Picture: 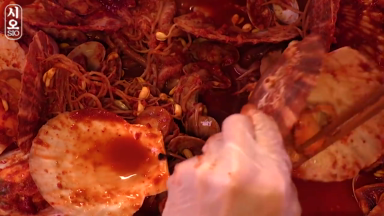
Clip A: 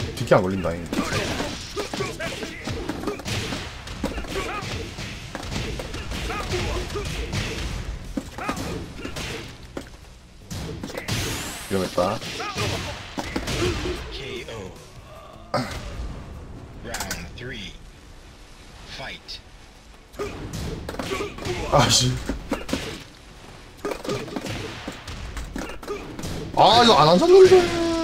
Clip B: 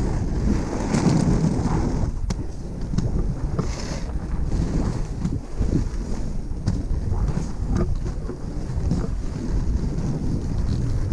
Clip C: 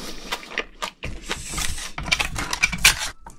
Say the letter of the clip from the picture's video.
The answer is C